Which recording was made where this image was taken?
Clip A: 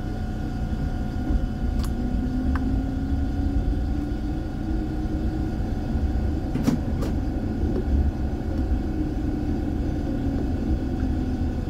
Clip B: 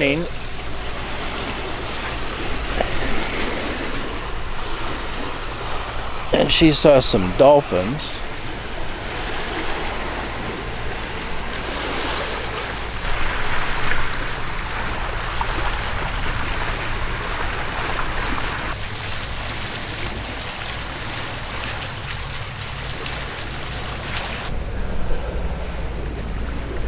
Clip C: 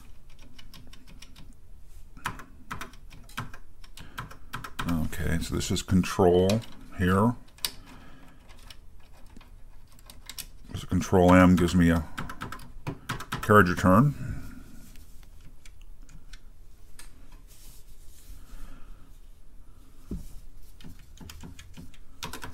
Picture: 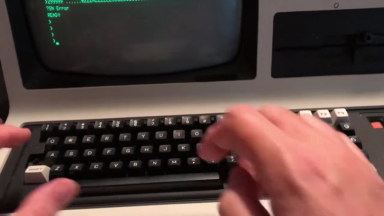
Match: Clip C